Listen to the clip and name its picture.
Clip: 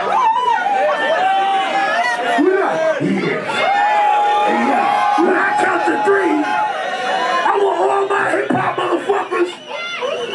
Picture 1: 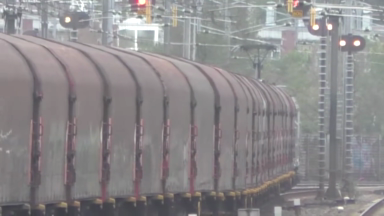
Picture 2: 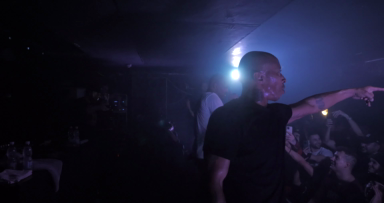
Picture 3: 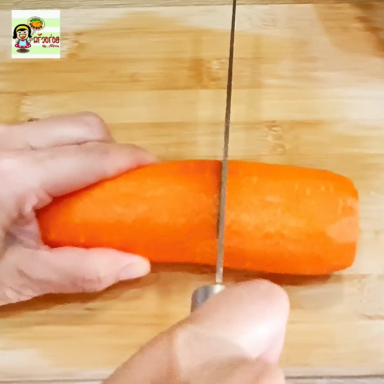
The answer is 2